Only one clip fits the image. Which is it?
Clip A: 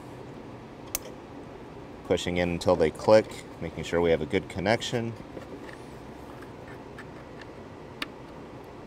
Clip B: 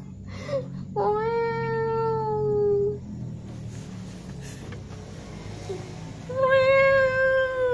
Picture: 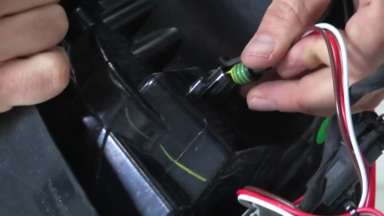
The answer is A